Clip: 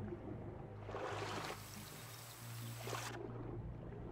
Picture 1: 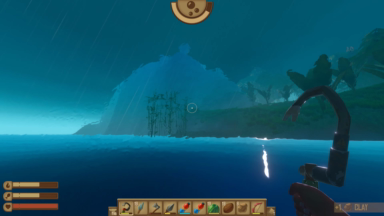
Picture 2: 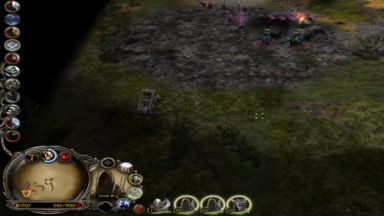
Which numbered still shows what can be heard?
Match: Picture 1